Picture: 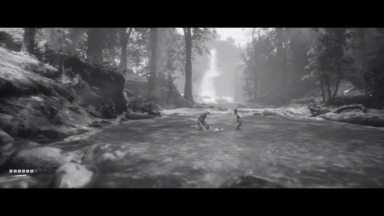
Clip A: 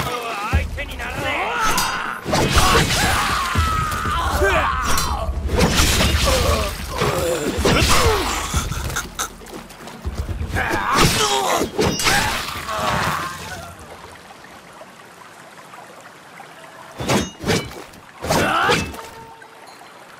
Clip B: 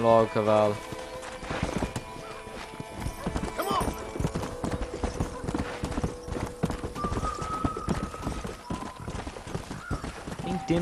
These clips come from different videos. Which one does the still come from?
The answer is A